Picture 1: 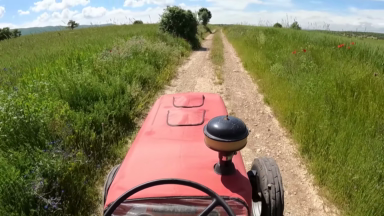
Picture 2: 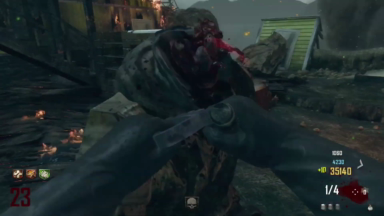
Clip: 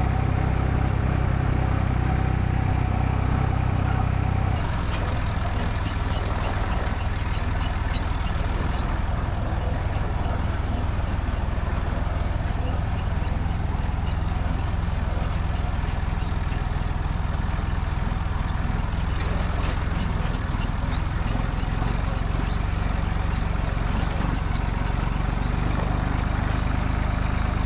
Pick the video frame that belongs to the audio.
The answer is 1